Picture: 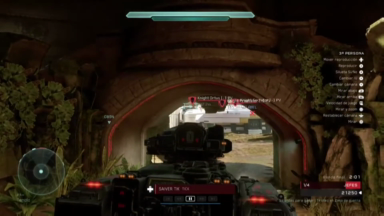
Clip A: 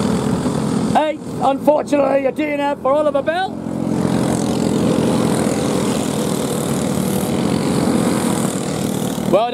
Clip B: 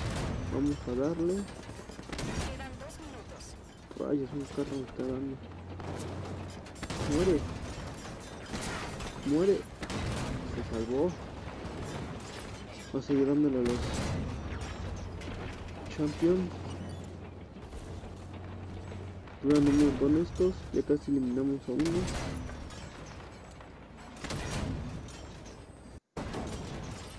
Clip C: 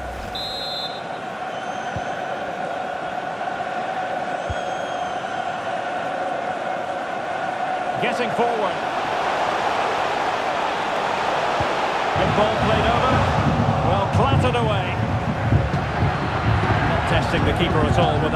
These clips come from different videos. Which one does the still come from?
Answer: B